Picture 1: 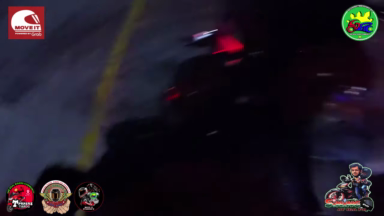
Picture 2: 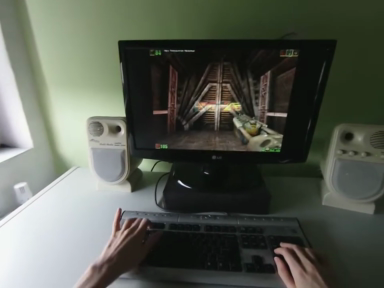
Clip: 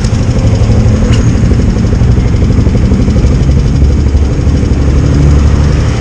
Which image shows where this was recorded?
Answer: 1